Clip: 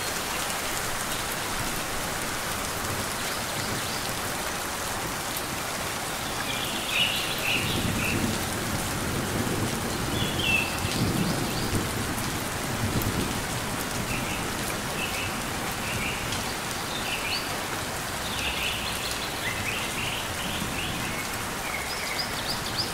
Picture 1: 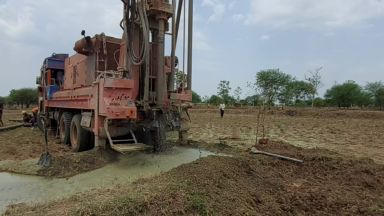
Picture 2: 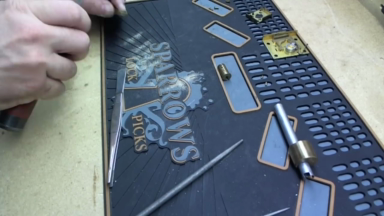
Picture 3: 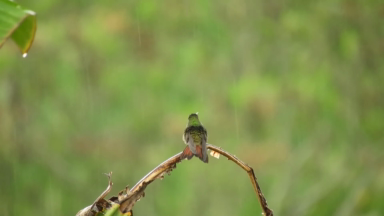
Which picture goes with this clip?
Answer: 3